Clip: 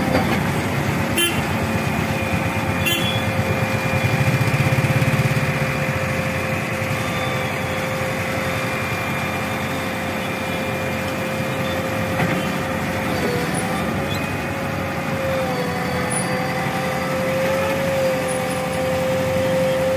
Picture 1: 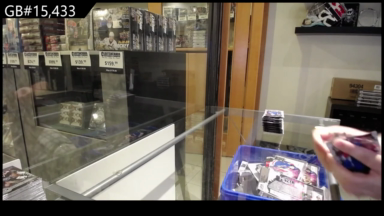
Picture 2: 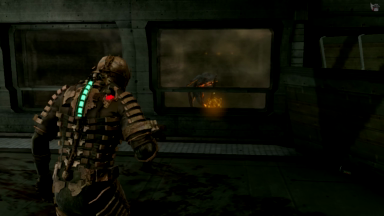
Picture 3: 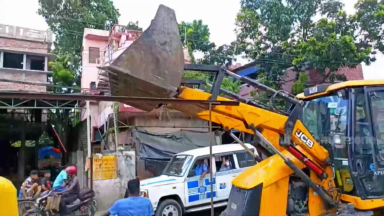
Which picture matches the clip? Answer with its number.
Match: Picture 3